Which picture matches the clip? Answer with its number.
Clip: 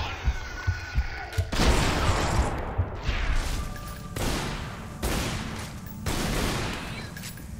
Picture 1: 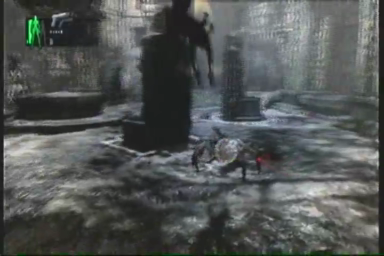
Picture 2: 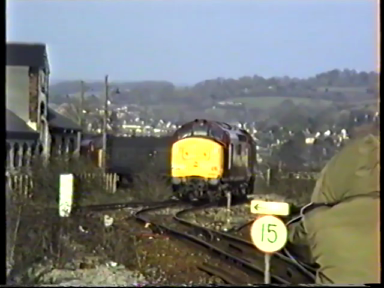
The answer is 1